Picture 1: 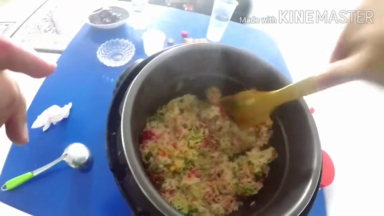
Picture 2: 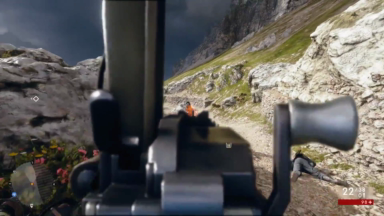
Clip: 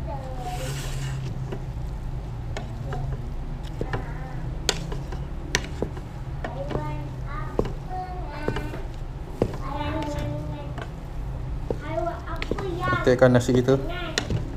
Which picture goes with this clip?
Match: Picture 1